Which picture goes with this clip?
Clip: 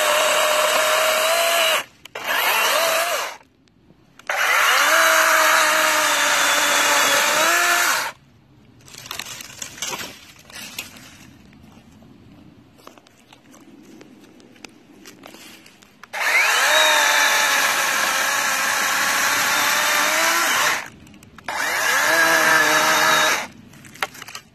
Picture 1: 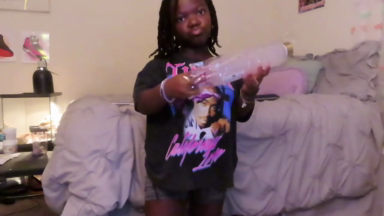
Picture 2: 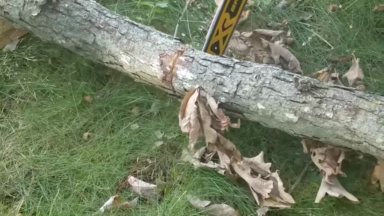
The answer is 2